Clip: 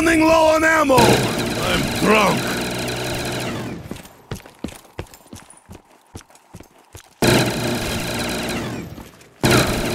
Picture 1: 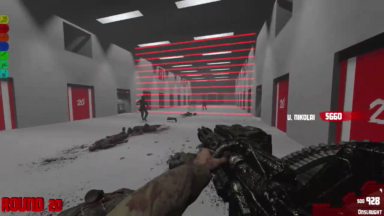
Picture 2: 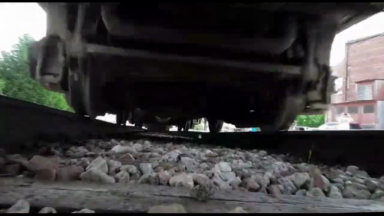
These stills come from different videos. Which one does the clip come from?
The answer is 1